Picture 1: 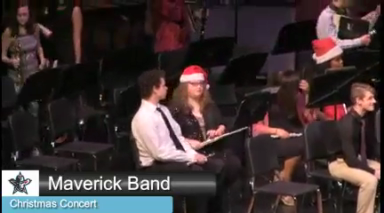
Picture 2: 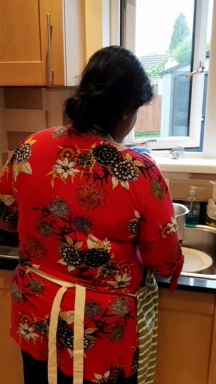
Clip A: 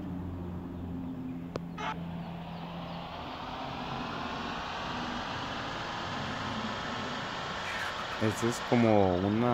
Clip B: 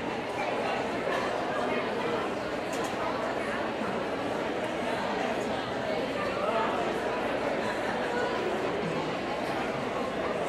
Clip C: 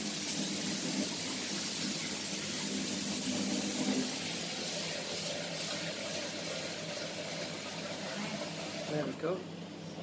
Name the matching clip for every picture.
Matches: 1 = B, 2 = C